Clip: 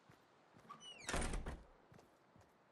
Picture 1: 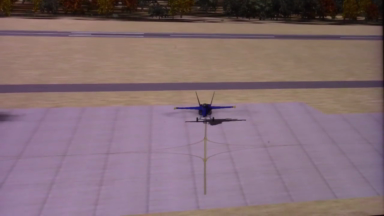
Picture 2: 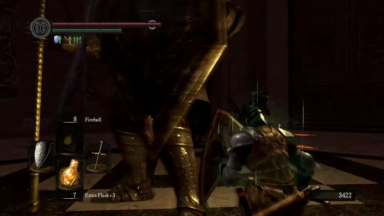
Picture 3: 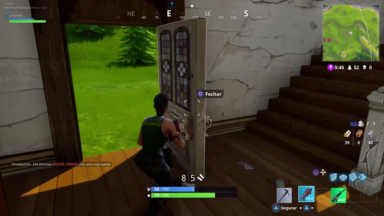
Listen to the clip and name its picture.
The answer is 3